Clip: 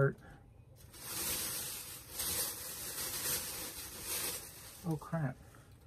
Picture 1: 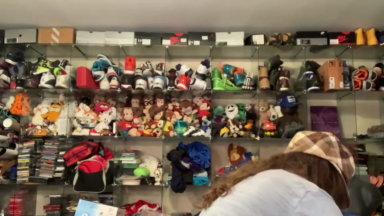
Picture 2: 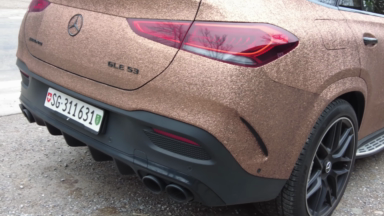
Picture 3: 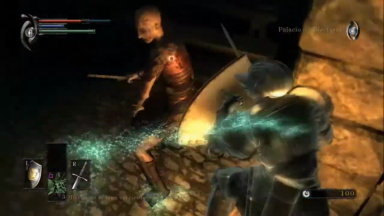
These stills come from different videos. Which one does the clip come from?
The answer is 1